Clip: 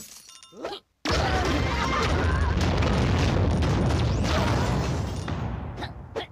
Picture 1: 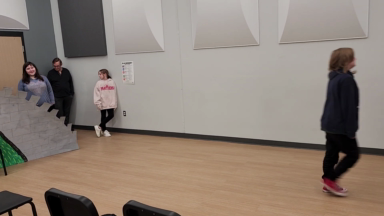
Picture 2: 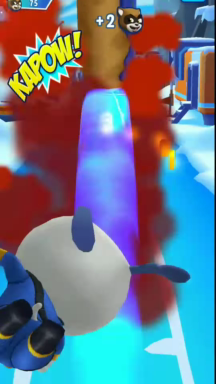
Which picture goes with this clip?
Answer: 2